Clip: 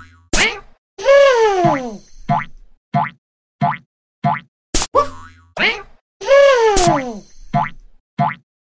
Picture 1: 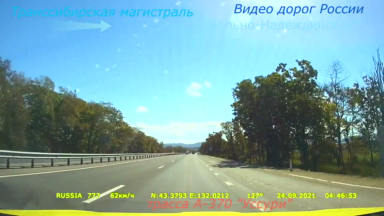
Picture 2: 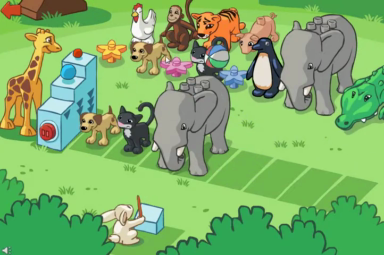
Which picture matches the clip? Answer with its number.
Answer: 2